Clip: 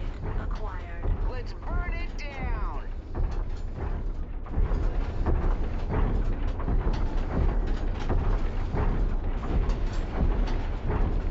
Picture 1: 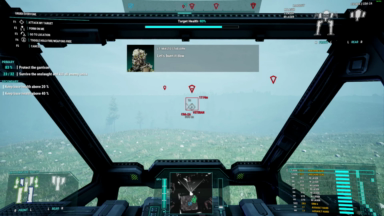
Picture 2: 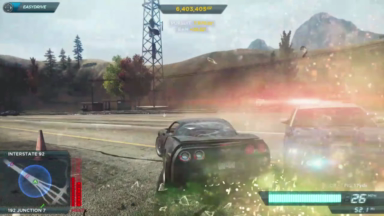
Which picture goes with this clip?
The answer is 1